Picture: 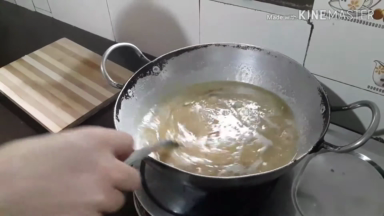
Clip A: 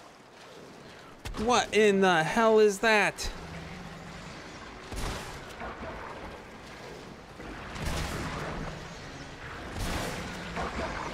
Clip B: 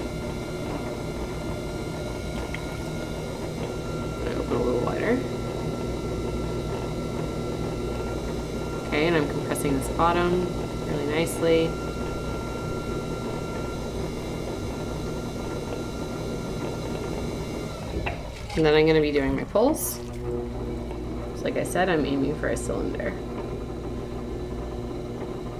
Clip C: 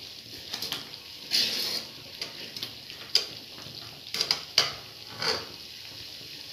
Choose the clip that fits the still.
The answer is C